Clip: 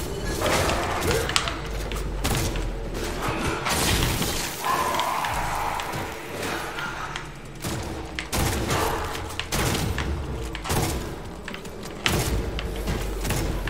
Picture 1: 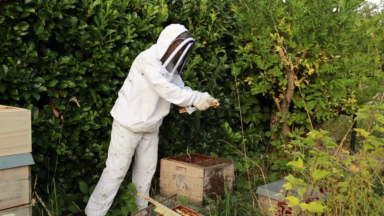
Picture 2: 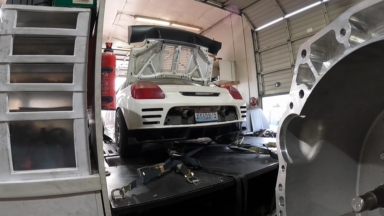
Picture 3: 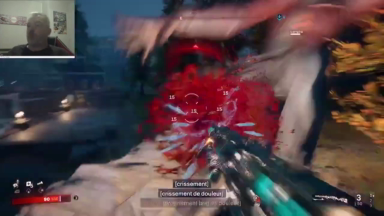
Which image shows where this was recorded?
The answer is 3